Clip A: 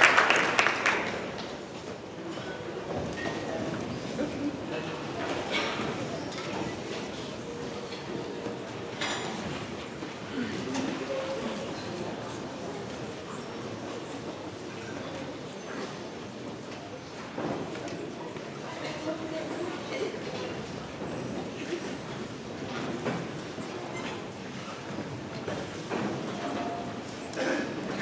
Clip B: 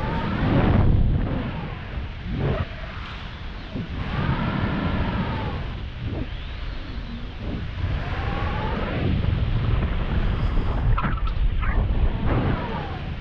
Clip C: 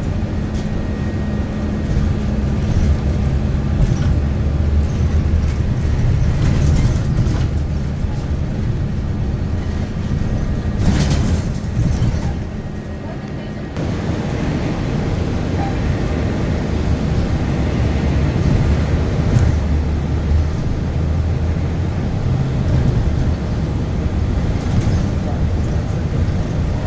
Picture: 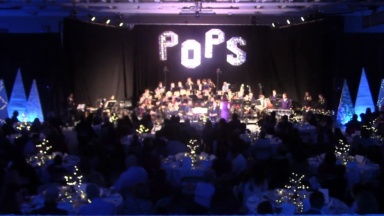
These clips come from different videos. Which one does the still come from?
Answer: A